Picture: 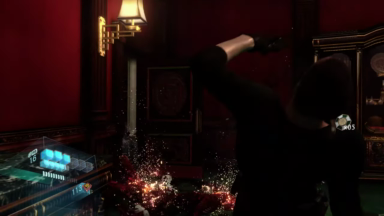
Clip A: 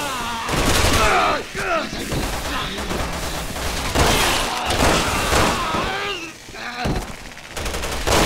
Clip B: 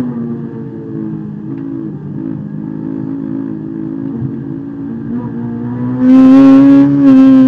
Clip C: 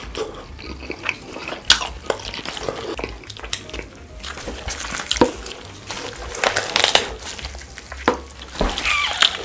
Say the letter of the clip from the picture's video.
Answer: A